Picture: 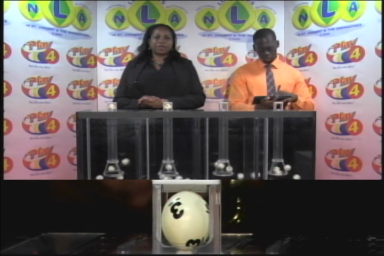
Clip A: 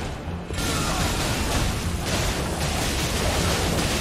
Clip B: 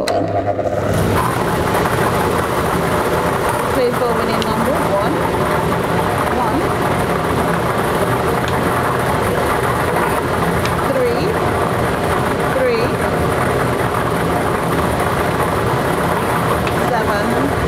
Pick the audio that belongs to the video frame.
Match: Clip B